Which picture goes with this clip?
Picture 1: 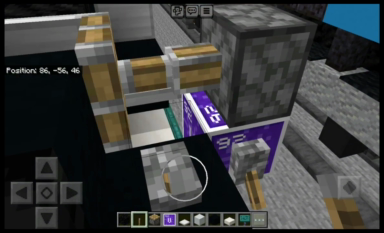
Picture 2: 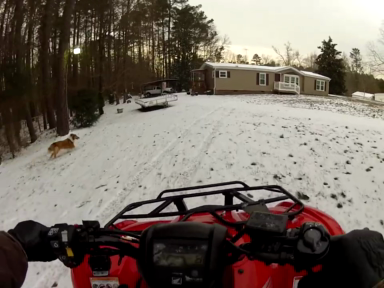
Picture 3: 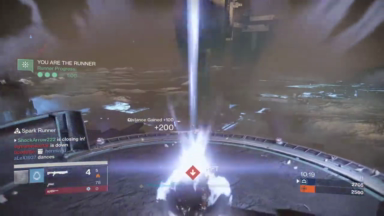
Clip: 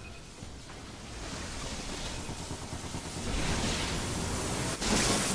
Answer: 3